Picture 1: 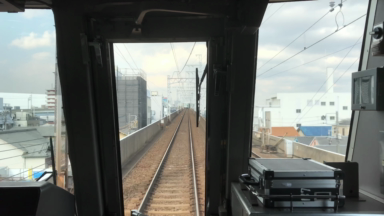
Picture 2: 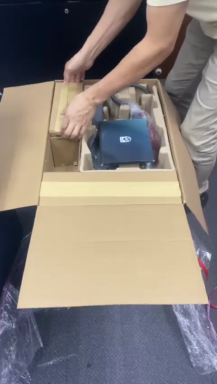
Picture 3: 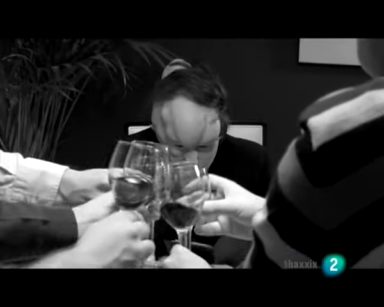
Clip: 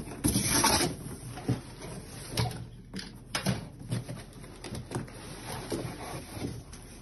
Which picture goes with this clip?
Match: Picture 2